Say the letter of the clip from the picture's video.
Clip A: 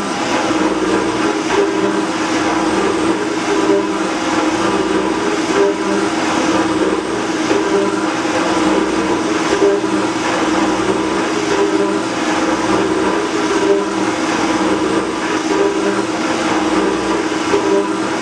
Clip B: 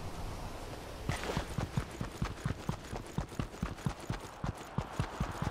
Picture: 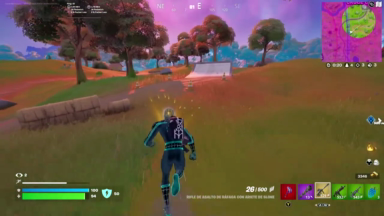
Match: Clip B